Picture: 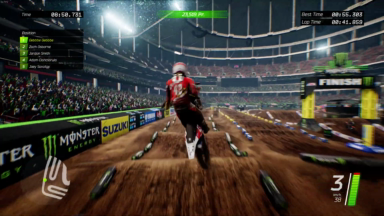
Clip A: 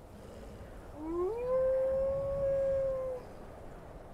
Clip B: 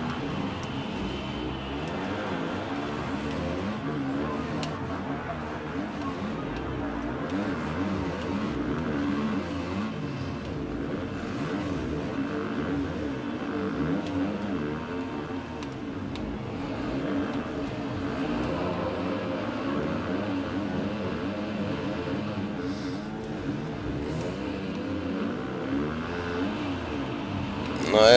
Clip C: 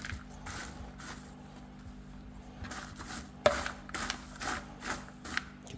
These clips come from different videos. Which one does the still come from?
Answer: B